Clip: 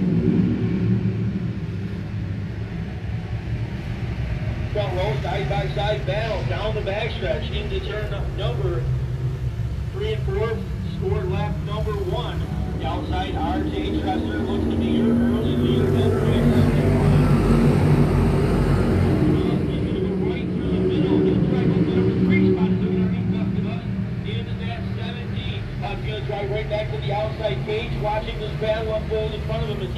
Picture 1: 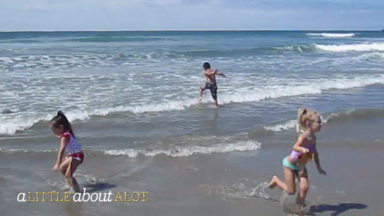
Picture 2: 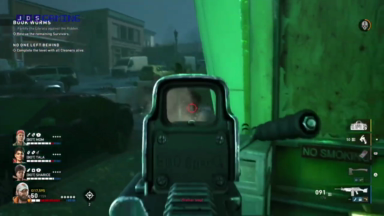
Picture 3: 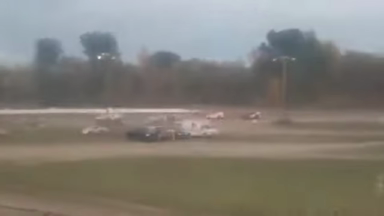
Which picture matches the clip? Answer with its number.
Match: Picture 3